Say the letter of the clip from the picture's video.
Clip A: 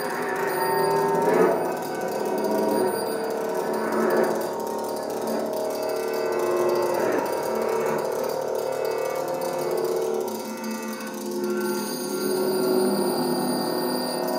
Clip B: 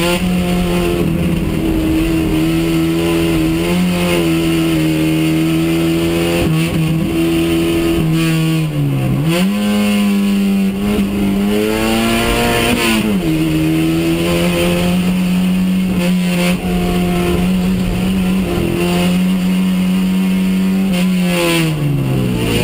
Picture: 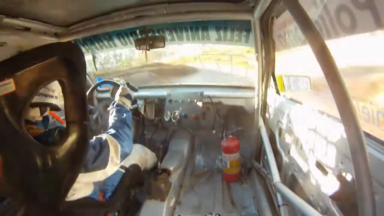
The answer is B